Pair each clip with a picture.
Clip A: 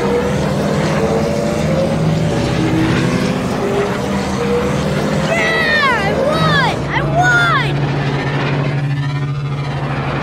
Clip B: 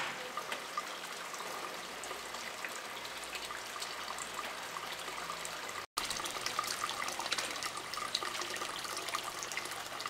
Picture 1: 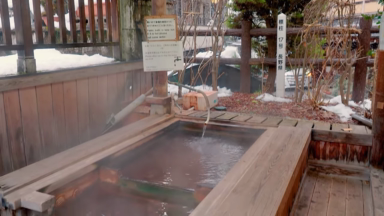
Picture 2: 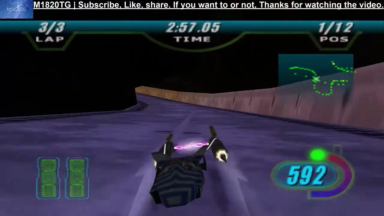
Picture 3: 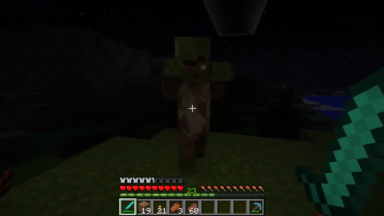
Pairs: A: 2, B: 1